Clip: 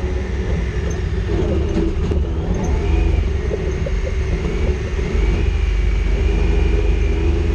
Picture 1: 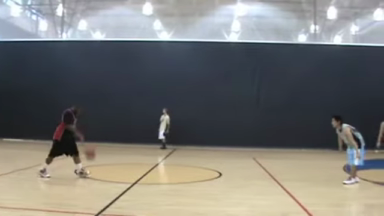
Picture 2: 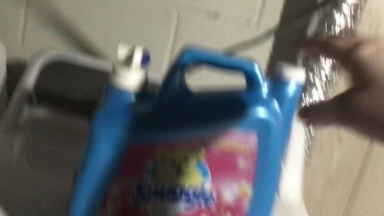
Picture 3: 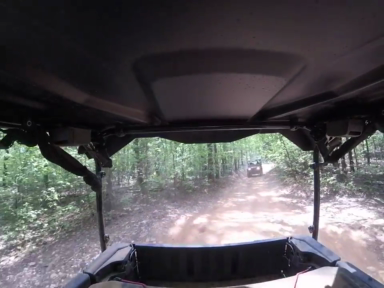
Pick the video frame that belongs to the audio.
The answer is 3